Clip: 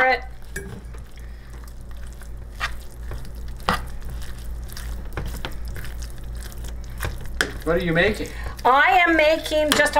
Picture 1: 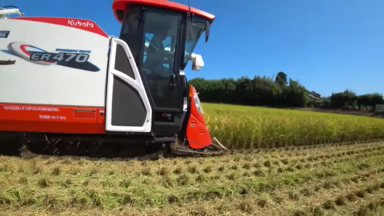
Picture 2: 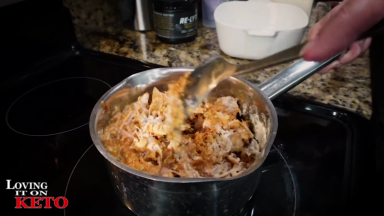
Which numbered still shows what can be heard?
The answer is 2